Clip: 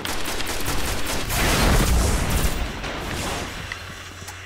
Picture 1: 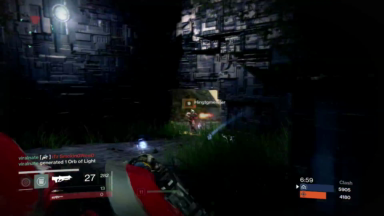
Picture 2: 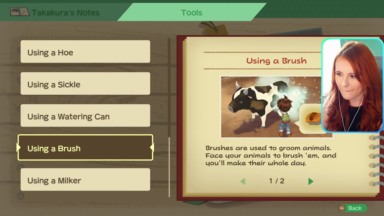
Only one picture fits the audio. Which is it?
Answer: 1